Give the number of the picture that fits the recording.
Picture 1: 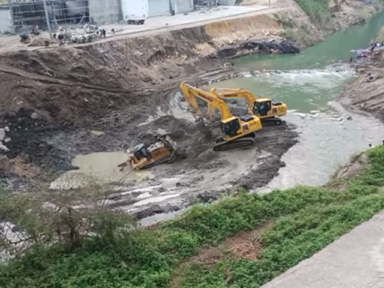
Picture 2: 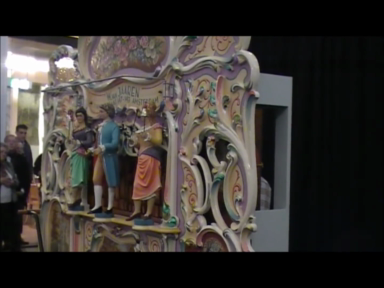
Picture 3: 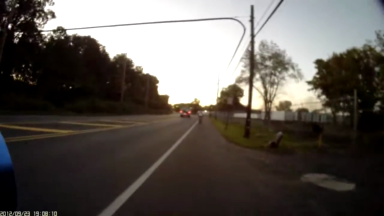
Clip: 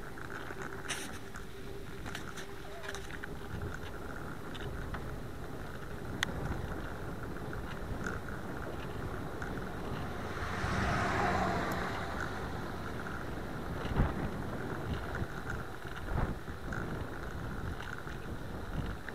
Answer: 3